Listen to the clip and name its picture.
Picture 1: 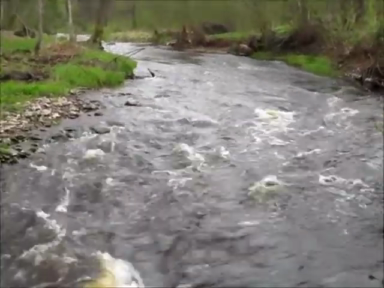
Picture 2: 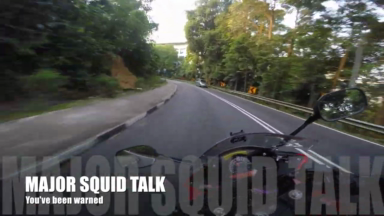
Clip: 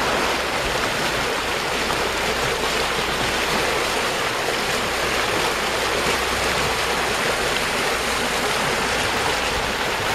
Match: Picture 1